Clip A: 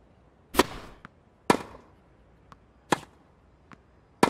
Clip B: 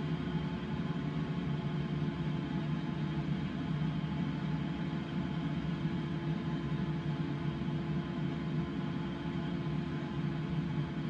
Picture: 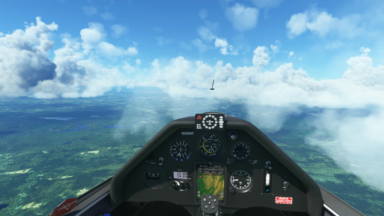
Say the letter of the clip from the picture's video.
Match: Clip B